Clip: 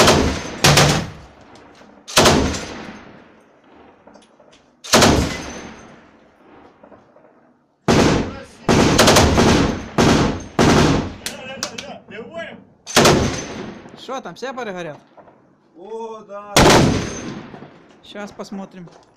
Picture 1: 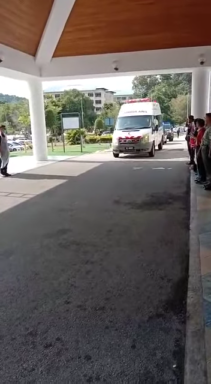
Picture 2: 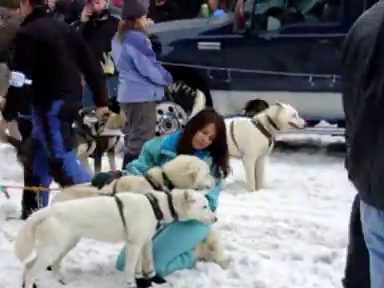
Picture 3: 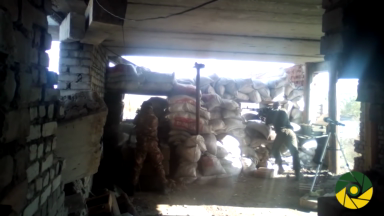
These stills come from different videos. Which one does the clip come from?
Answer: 3